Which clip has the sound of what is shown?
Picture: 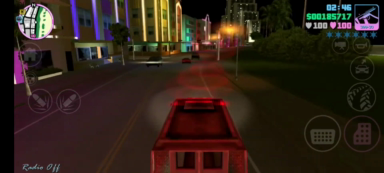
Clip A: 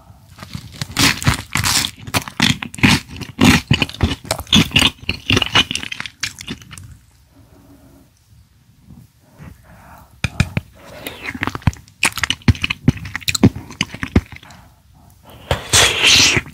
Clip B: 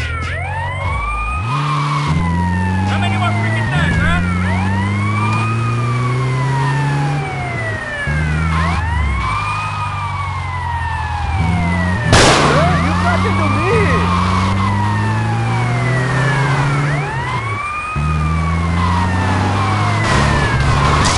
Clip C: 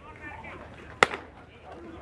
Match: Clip B